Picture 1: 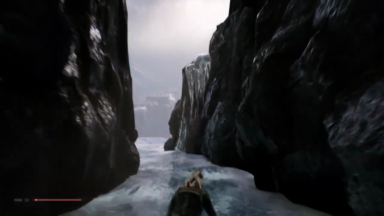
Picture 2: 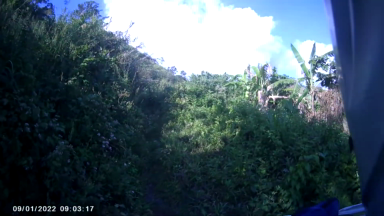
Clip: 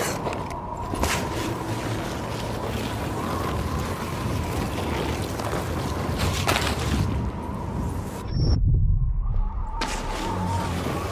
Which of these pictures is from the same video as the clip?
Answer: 1